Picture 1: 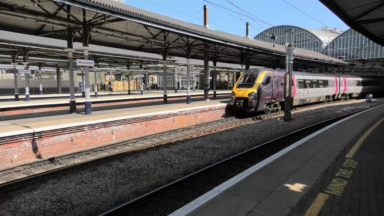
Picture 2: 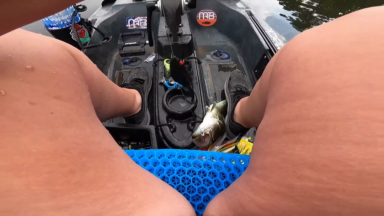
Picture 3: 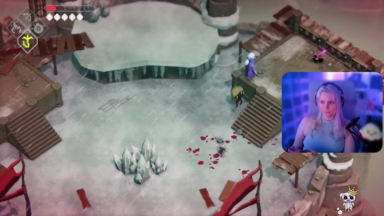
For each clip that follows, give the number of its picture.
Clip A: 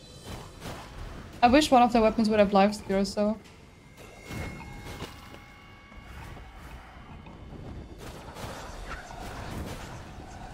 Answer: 3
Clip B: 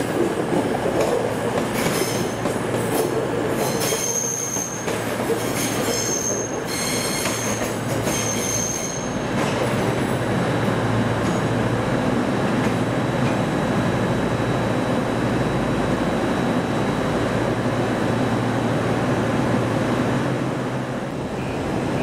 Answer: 1